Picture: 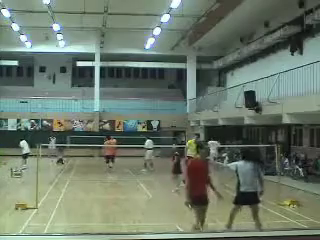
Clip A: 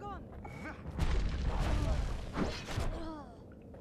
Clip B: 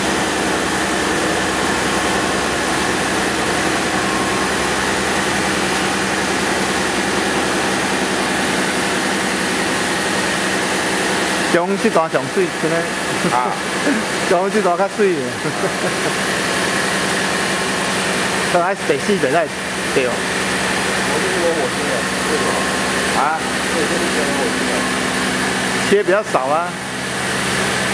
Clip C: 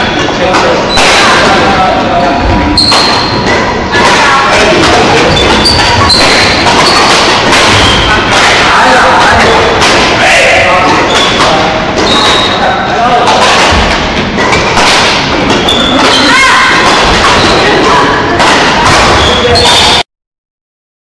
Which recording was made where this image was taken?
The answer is C